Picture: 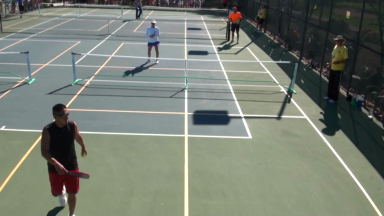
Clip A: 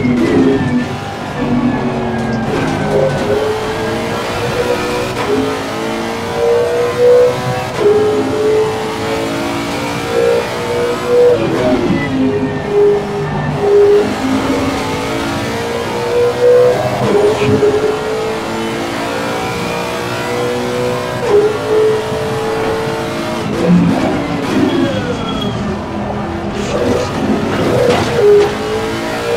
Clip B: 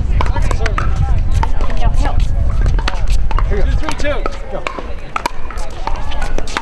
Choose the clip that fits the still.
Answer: B